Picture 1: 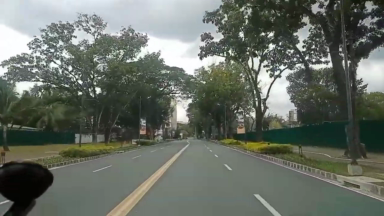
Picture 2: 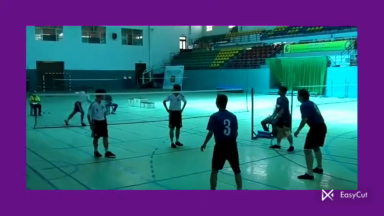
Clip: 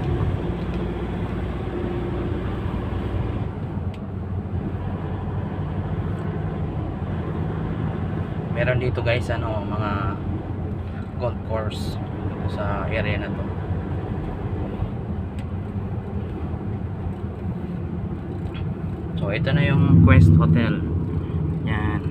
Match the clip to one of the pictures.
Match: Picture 1